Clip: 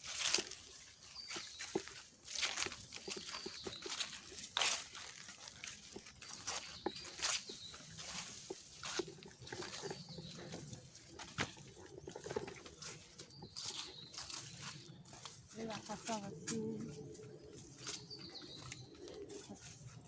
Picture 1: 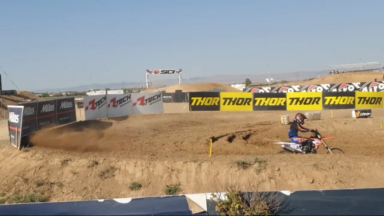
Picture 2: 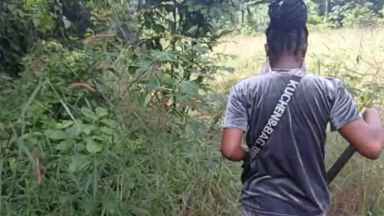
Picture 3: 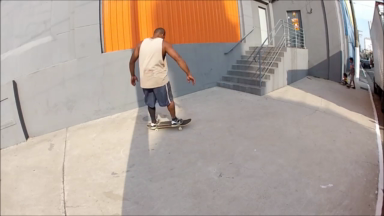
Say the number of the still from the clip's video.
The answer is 2